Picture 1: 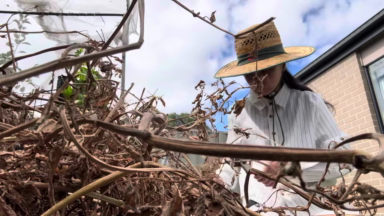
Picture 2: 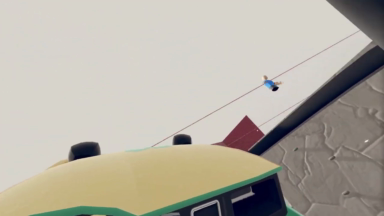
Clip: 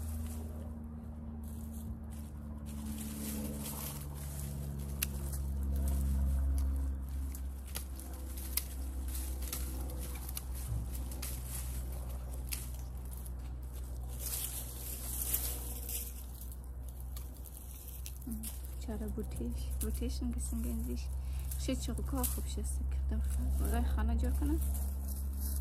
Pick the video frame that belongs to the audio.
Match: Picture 1